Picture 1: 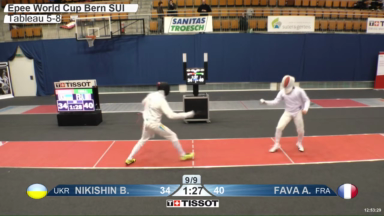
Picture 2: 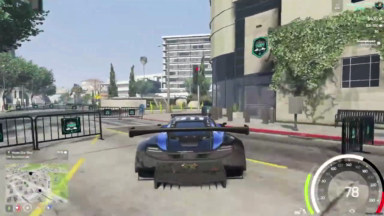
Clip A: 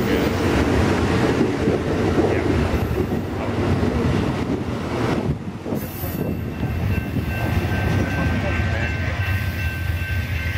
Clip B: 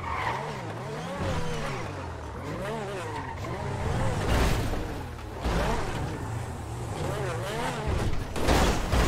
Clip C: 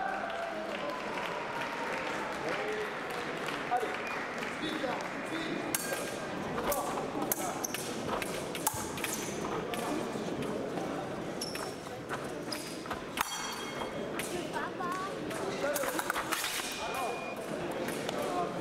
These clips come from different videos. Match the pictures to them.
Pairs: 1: C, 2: B